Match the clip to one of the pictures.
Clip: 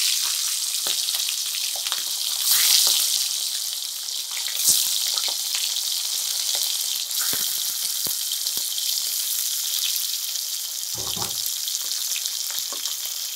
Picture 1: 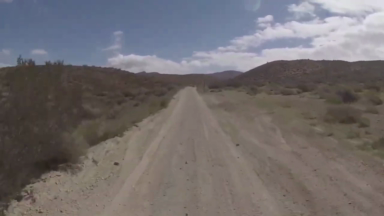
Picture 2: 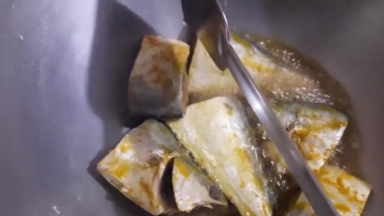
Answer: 2